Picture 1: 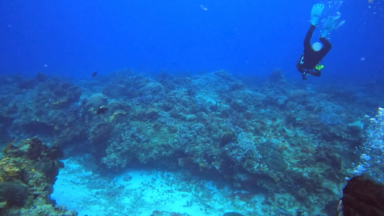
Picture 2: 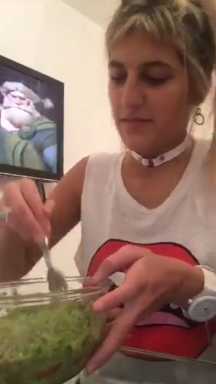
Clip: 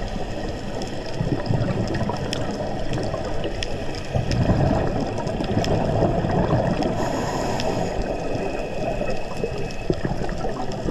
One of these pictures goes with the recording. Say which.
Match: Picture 1